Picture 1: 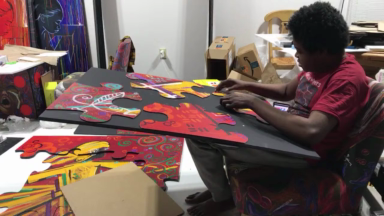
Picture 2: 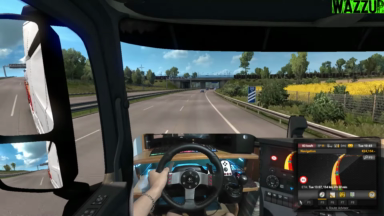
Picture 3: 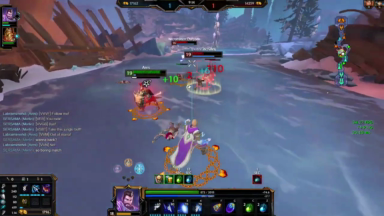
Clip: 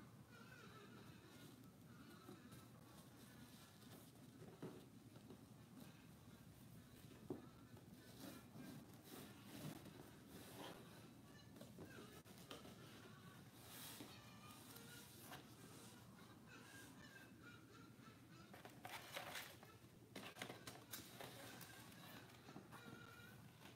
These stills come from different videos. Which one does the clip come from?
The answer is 1